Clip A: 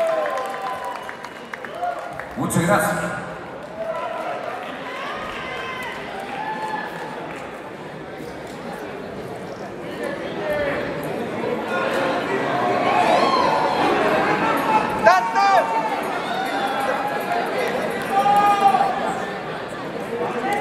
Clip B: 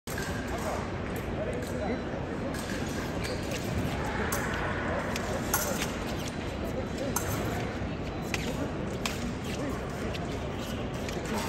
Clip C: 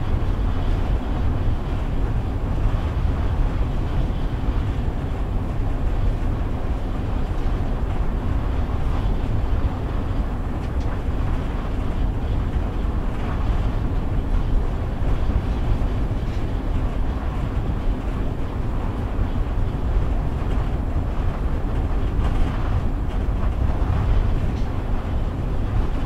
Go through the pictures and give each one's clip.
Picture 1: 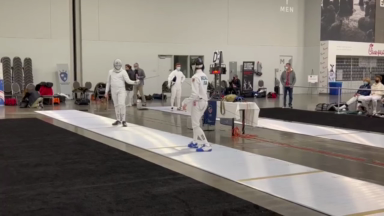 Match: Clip B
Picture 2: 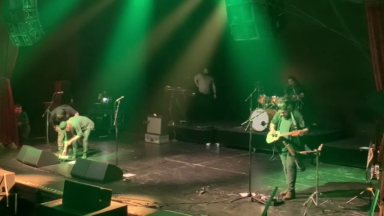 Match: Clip A